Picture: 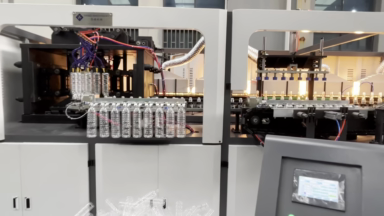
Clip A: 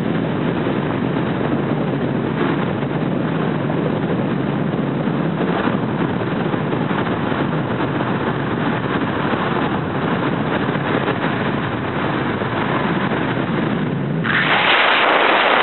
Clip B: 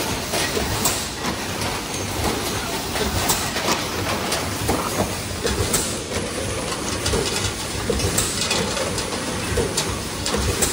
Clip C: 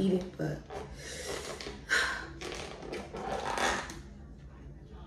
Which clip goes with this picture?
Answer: B